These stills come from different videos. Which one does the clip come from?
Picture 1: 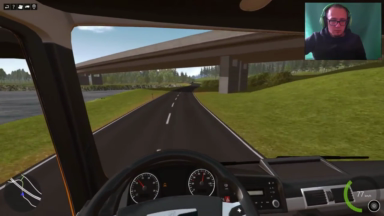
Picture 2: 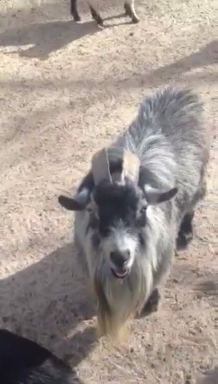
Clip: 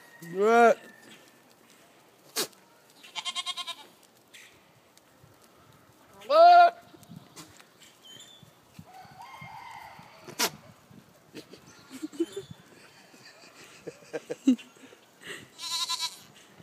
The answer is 2